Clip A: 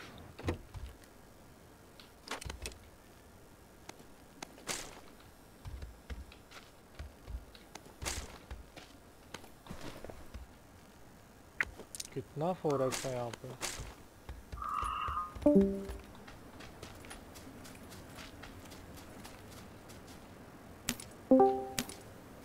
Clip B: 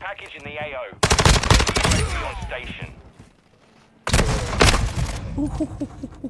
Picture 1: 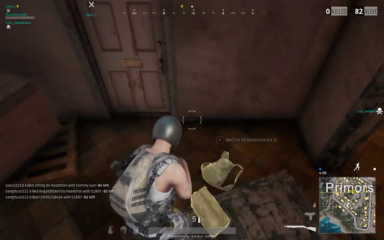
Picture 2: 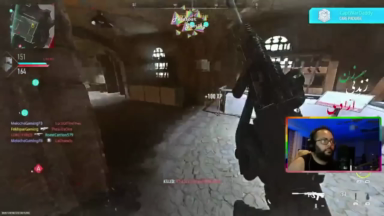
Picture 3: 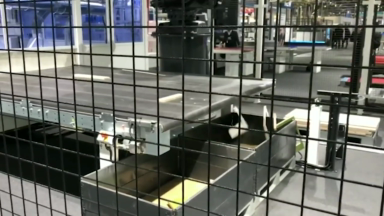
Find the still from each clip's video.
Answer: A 1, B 2